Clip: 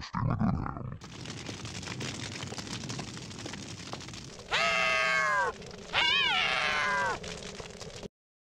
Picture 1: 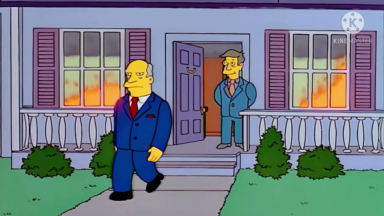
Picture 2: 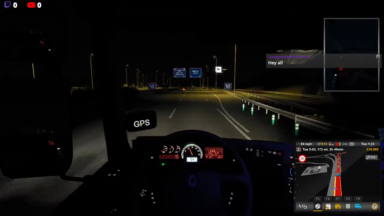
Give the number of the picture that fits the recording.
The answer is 1